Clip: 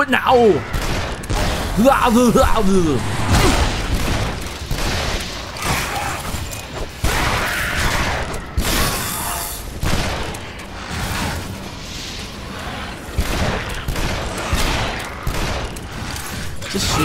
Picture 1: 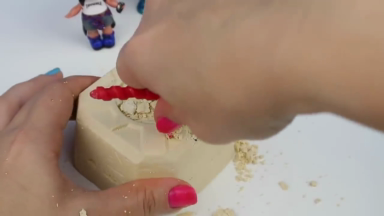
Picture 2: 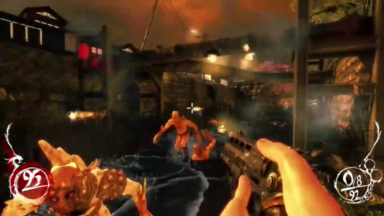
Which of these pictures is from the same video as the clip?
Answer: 2